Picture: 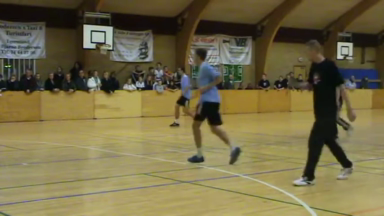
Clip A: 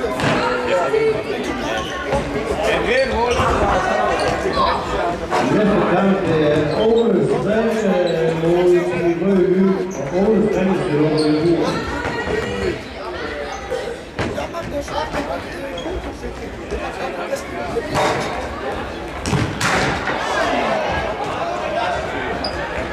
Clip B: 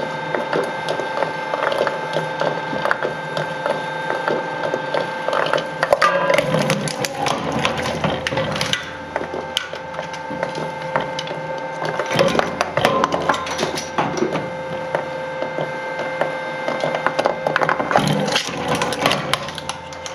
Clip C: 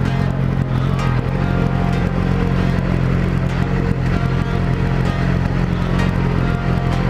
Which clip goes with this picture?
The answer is A